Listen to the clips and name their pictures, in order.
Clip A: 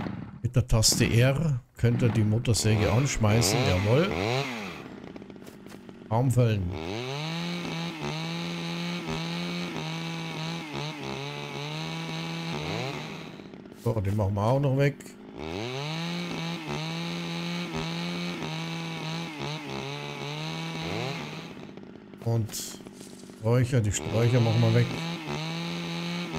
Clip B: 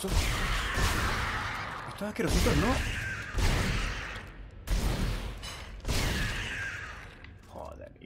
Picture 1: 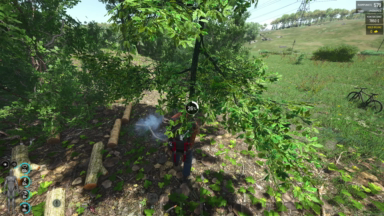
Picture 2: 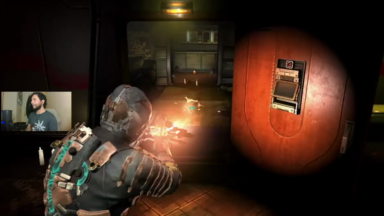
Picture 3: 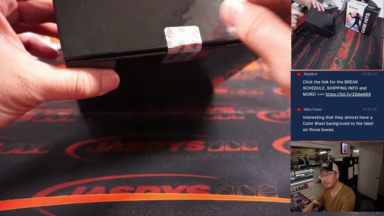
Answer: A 1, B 2